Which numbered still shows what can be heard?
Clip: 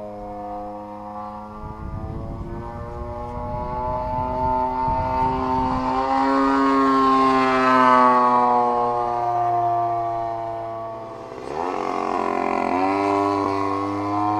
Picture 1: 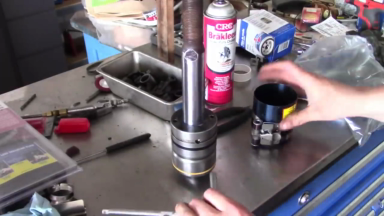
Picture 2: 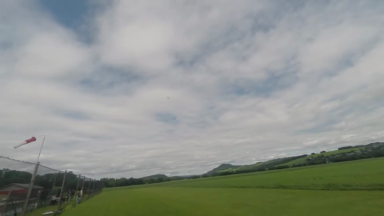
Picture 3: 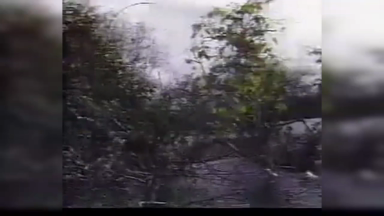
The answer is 2